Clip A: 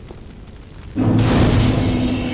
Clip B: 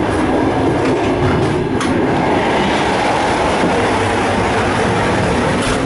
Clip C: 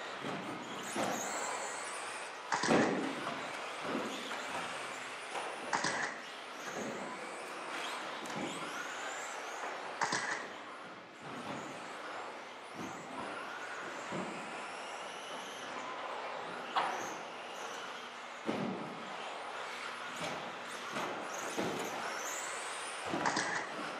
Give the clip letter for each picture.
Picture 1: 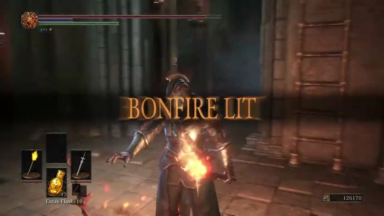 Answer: A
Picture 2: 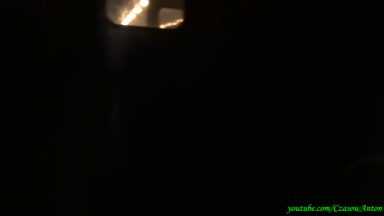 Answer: B